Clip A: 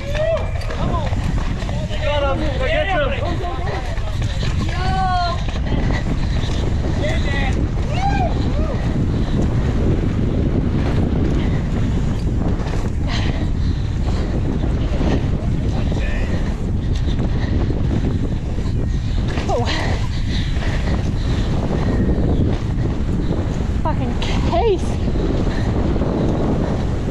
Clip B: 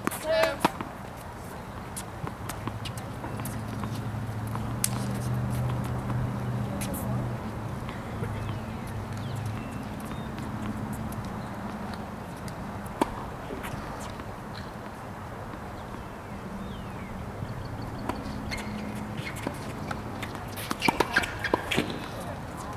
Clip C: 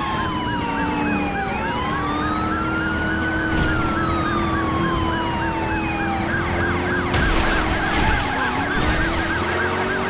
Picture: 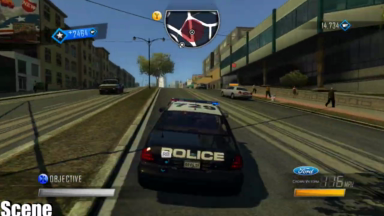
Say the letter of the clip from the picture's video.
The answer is C